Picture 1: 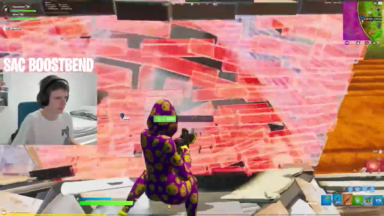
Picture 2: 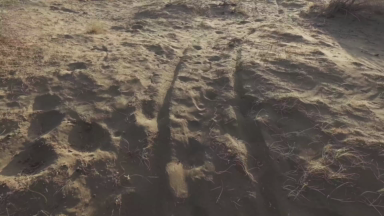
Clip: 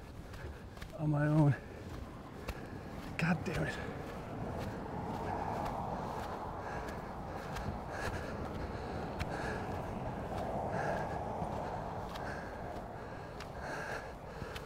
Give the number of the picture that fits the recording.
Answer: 2